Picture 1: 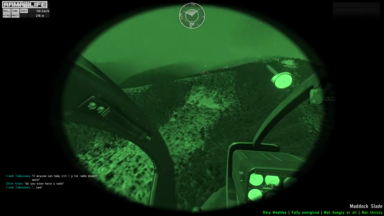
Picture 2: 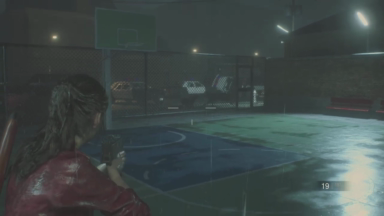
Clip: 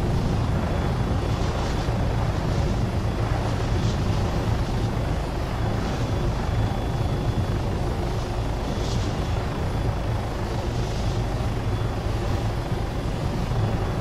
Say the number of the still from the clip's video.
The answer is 1